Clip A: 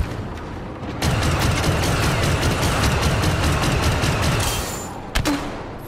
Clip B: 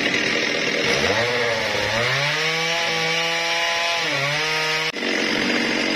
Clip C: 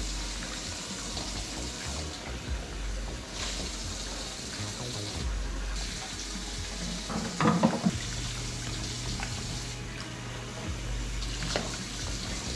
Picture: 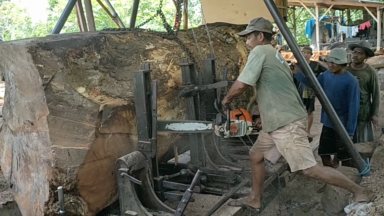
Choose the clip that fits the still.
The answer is B